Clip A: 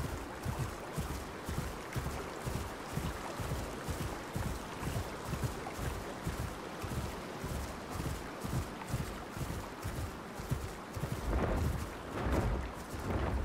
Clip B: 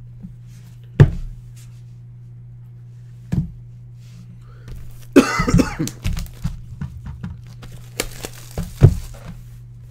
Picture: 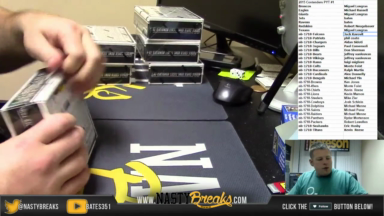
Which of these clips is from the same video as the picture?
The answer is B